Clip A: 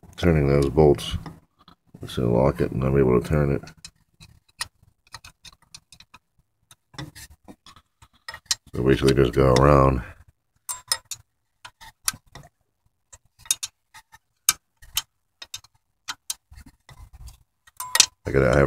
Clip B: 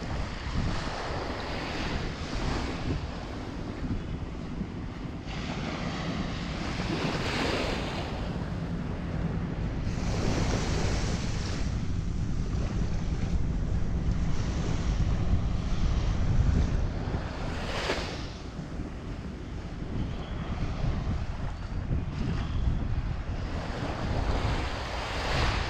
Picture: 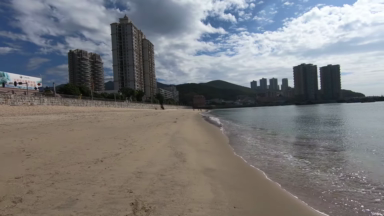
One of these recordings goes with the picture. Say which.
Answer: B